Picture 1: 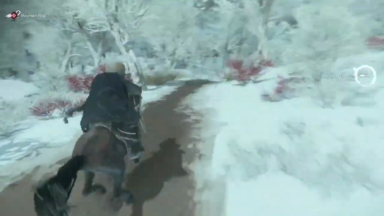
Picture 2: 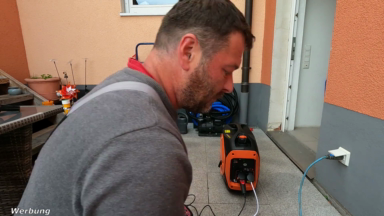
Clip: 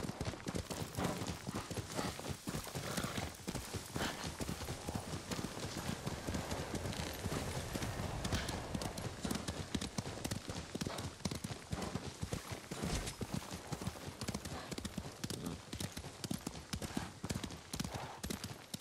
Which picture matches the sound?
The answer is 1